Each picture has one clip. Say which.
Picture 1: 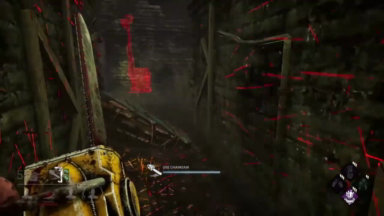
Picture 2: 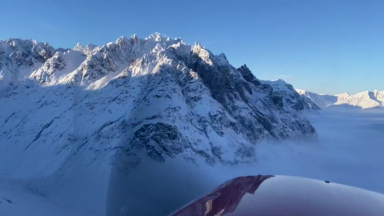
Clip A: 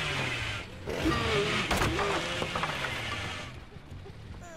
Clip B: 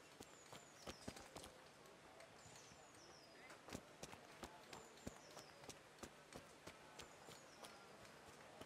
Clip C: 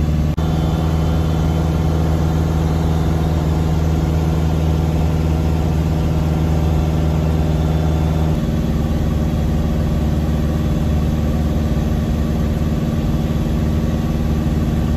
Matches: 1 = A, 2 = C